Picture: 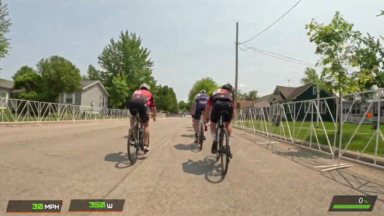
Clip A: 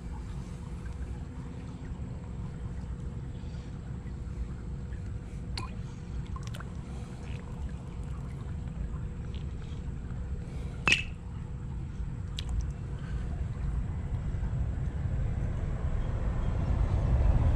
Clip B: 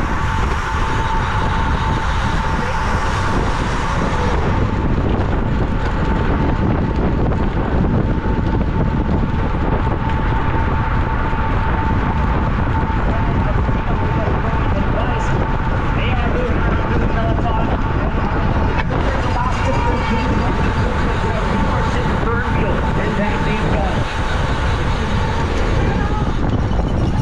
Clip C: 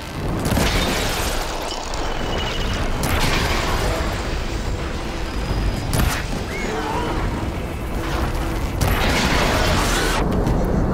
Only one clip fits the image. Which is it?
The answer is B